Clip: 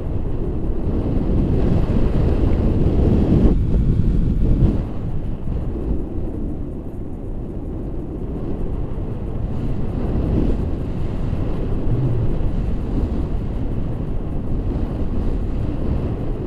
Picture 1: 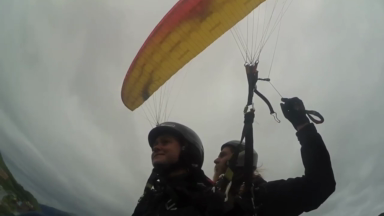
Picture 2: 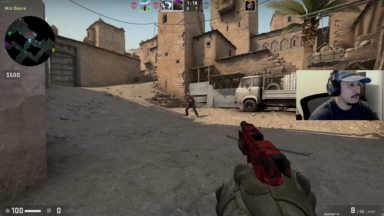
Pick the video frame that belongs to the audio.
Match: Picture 1